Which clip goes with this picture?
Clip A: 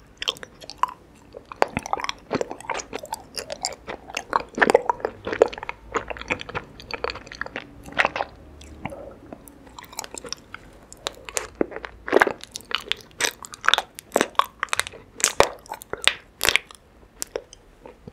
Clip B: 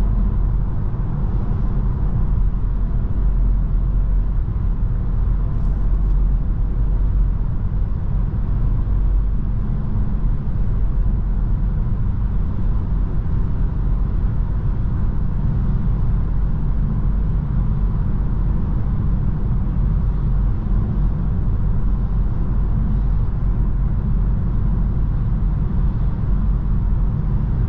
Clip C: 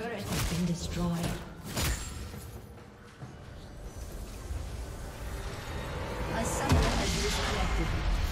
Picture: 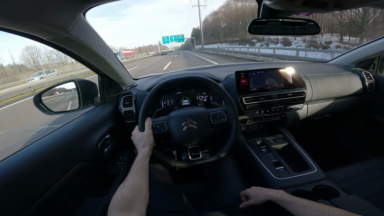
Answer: B